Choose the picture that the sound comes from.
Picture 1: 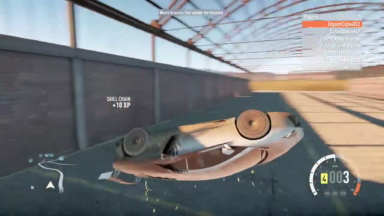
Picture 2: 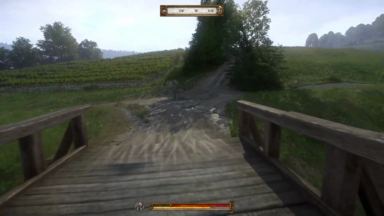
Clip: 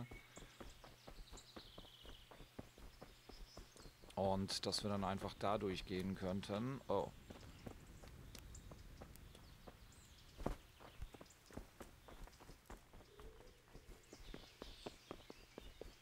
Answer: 2